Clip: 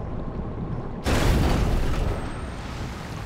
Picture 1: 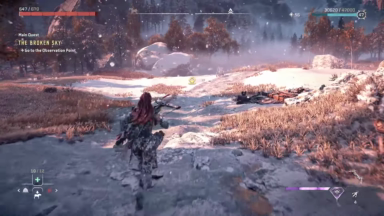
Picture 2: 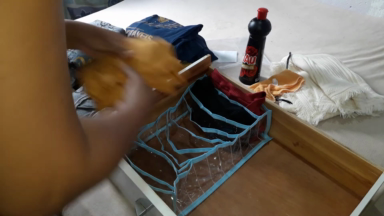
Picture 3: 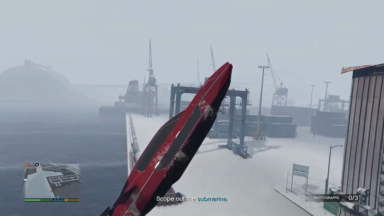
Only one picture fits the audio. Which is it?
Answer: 3